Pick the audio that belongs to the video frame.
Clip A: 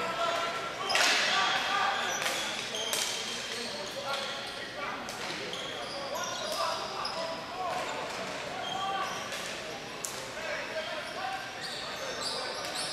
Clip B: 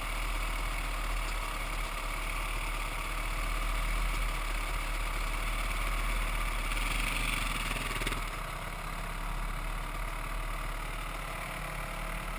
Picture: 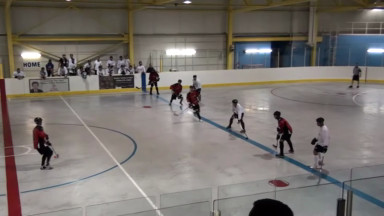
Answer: A